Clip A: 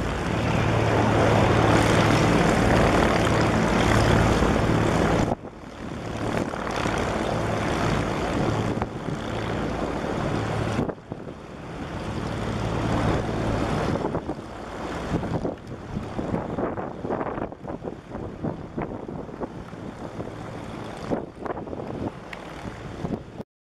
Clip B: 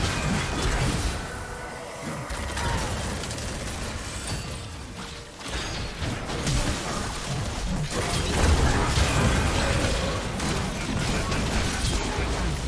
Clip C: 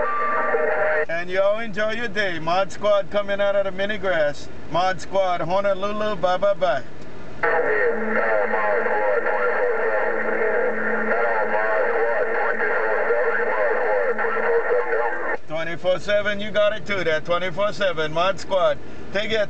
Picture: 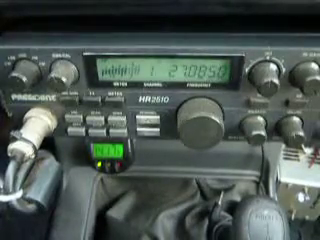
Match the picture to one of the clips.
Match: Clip C